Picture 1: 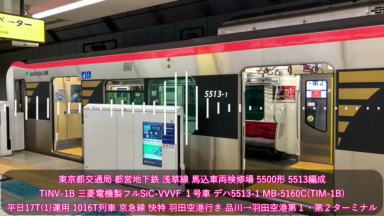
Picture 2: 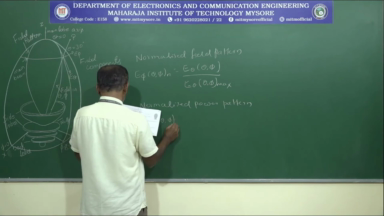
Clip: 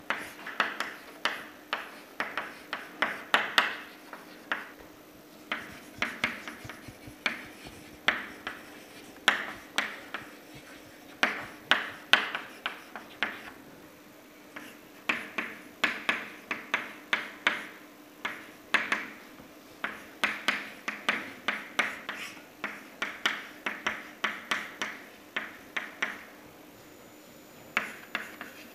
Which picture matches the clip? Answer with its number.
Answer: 2